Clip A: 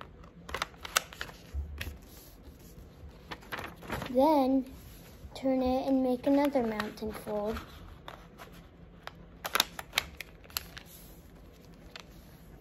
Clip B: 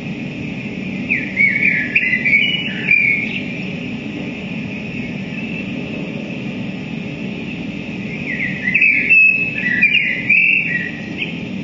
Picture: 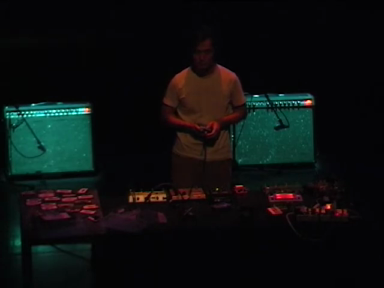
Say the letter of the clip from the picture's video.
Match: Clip B